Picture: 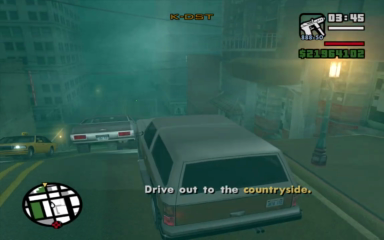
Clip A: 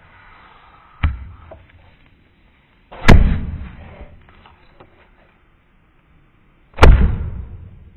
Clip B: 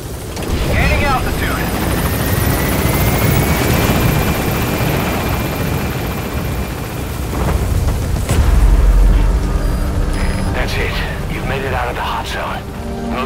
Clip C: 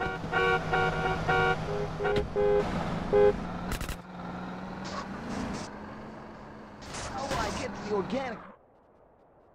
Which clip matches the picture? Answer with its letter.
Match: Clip C